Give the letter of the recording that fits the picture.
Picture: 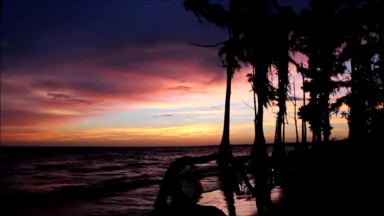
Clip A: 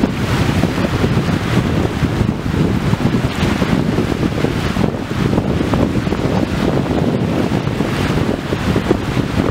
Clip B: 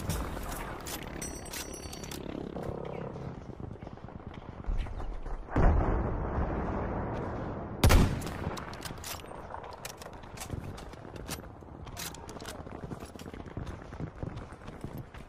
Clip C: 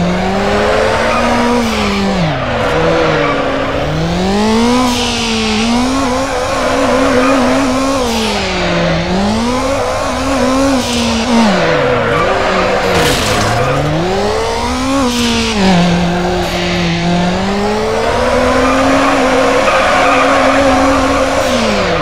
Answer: A